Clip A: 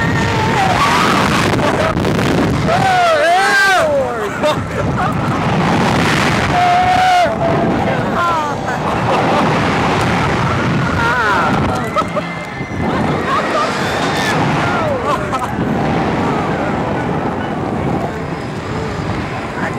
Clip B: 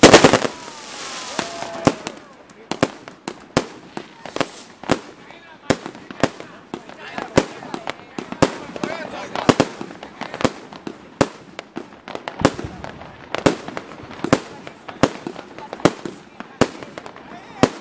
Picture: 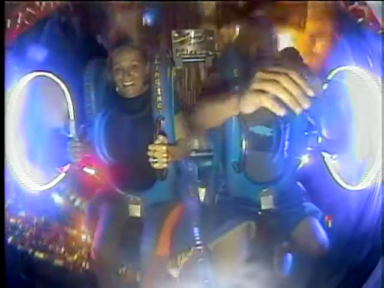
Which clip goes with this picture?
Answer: A